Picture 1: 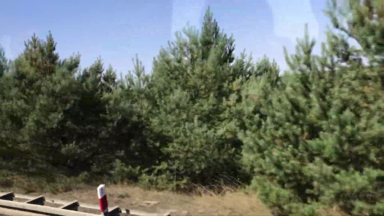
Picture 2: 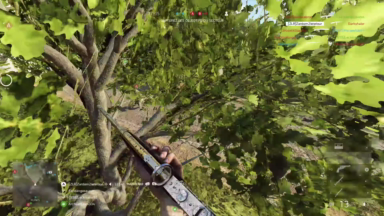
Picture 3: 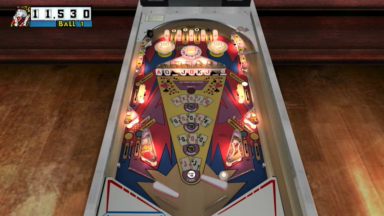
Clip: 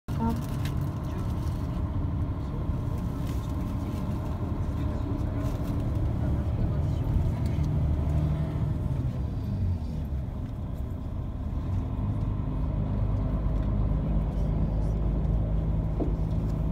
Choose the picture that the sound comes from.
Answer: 1